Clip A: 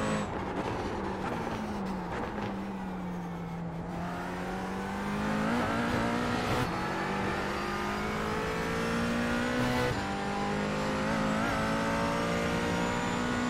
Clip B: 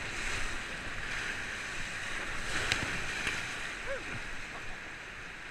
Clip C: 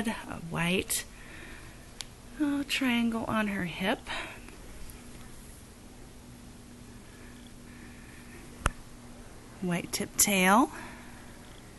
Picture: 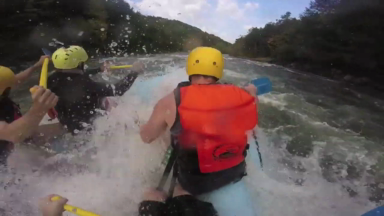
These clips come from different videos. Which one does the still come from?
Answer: B